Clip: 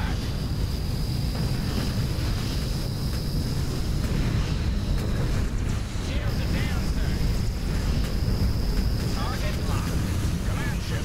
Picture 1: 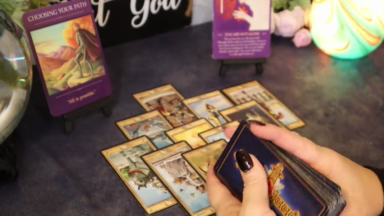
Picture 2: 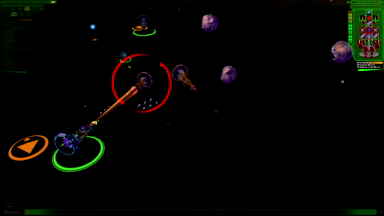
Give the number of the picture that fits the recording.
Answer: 2